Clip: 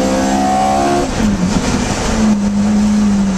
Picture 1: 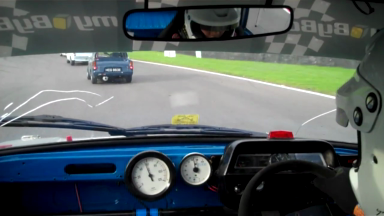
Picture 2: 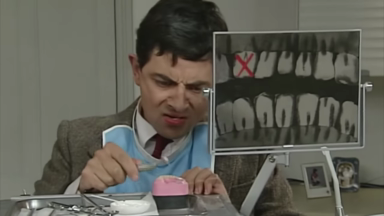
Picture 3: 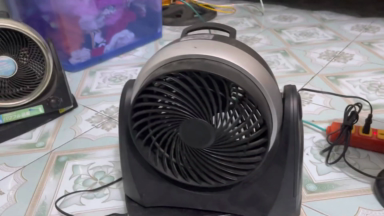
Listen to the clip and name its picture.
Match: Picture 1